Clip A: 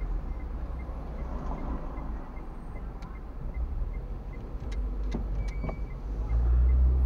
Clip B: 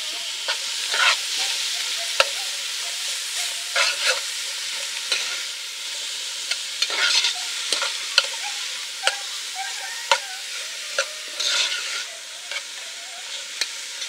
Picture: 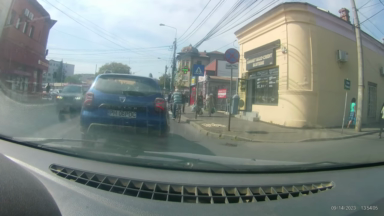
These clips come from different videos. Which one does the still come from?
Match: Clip A